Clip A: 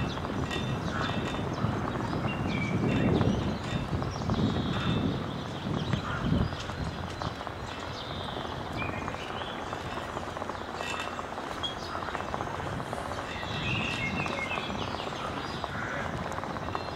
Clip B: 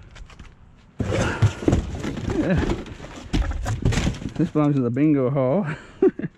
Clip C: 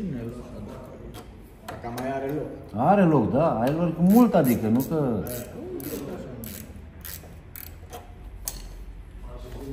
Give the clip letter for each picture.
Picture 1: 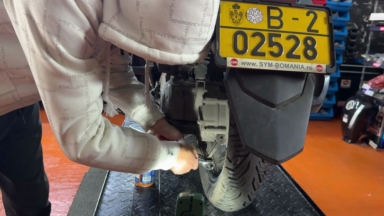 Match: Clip C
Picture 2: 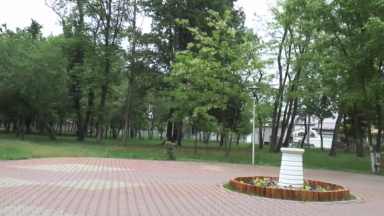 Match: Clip A